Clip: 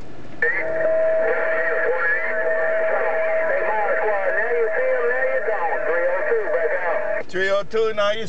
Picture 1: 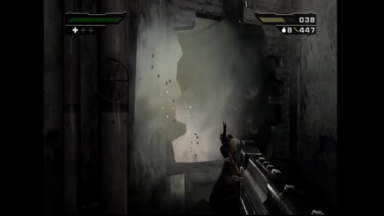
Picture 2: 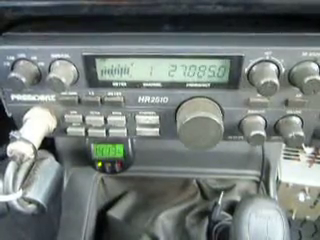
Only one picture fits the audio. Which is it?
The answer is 2